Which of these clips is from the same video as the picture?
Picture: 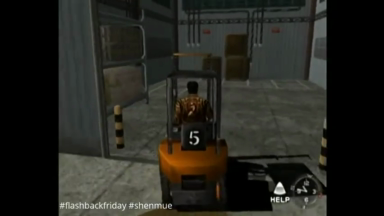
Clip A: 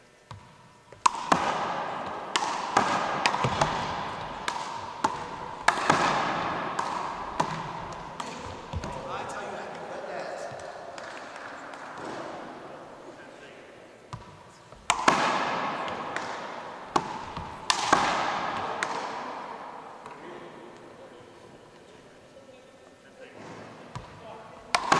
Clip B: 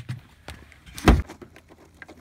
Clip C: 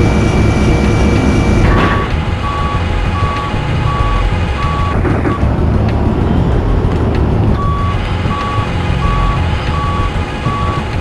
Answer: C